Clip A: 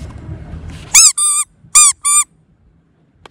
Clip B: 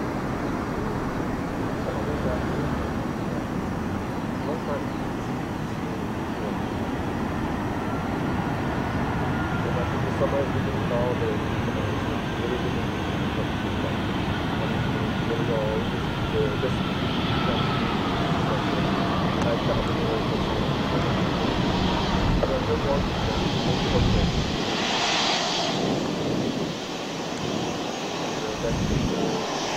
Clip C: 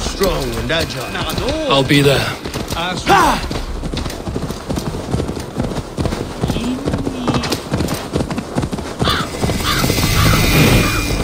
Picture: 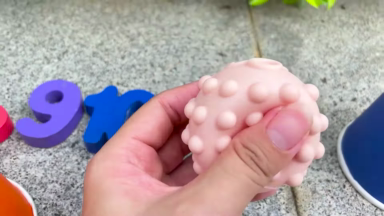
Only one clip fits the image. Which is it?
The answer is A